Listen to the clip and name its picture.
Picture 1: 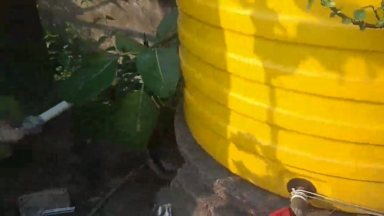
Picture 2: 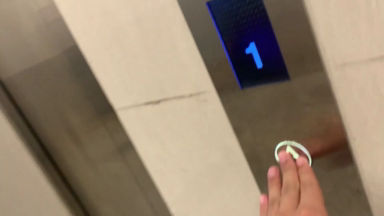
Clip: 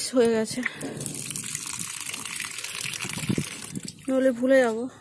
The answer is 1